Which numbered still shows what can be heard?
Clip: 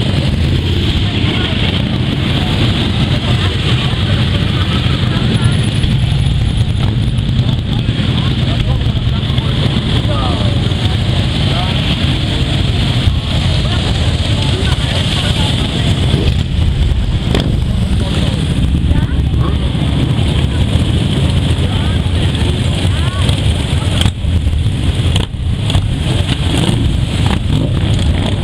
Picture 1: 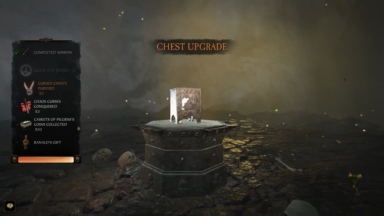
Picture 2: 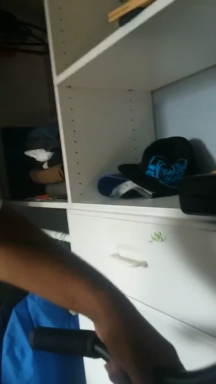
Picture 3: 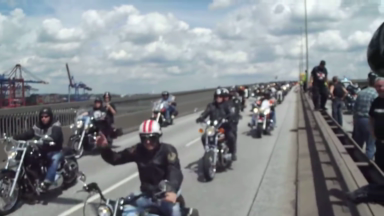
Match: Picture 3